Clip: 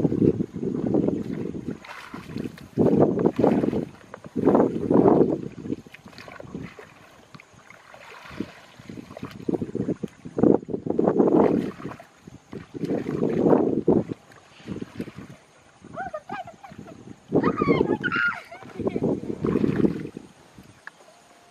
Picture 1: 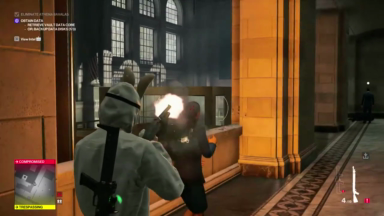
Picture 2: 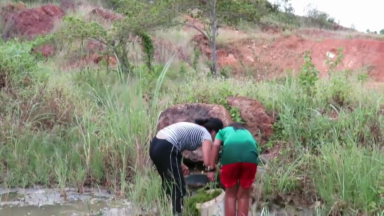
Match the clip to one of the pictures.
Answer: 2